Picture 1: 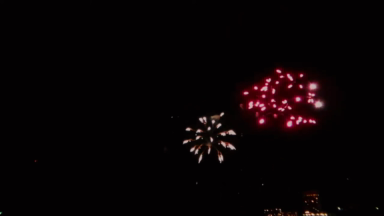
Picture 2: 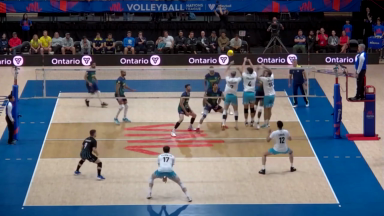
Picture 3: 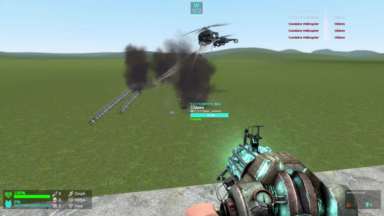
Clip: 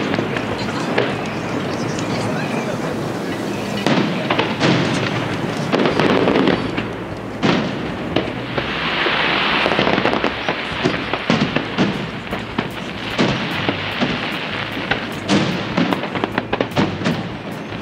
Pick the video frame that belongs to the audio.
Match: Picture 1